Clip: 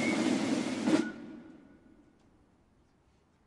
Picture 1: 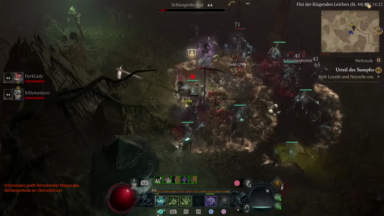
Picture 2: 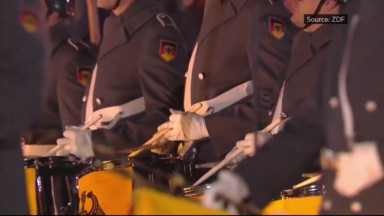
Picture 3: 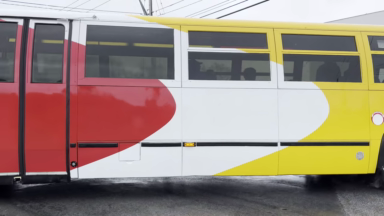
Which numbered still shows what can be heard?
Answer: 2